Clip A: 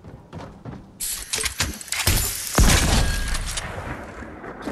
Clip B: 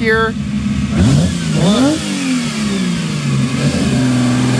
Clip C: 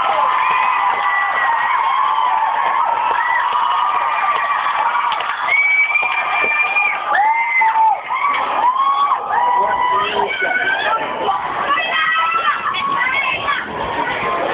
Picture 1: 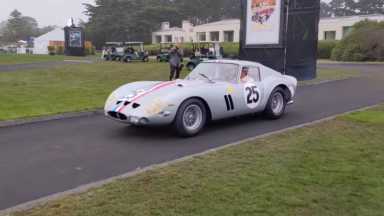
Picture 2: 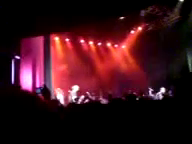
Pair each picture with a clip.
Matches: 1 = B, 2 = C